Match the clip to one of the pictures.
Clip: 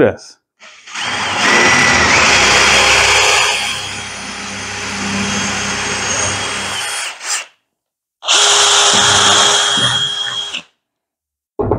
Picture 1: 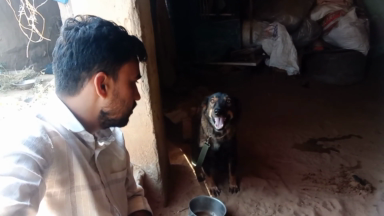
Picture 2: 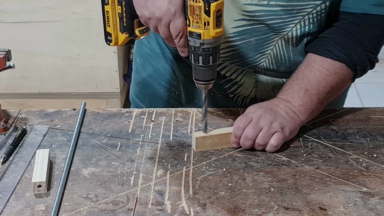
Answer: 2